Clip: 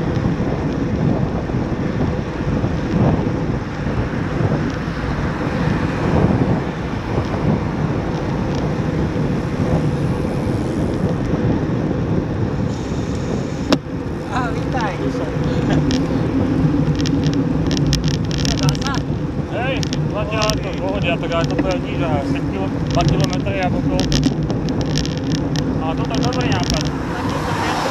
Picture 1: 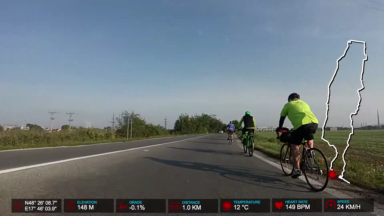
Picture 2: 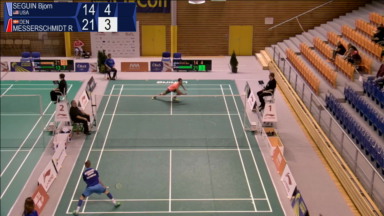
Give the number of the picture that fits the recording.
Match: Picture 1